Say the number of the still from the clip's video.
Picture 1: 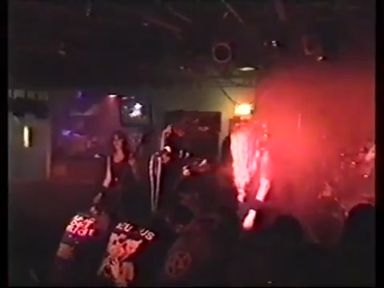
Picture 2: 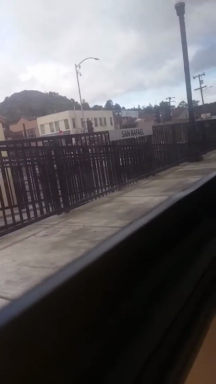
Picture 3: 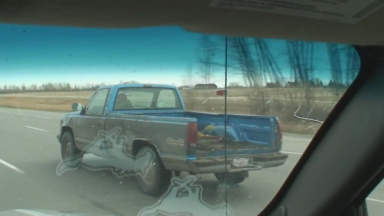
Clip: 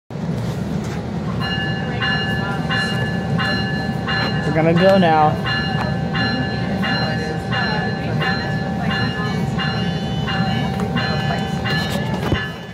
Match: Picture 2